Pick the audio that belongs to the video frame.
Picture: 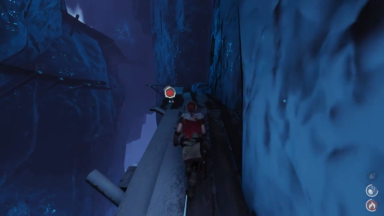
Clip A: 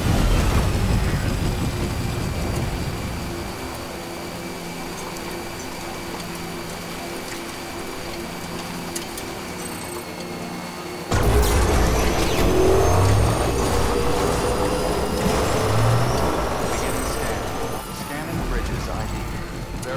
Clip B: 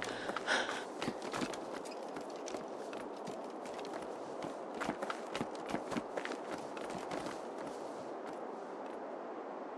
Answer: B